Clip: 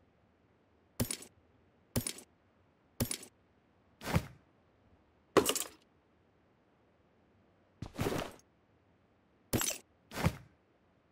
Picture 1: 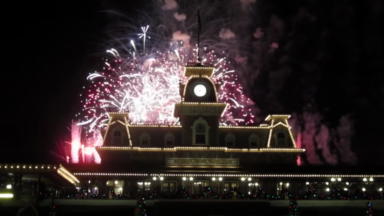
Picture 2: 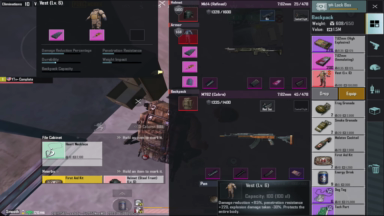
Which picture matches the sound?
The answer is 2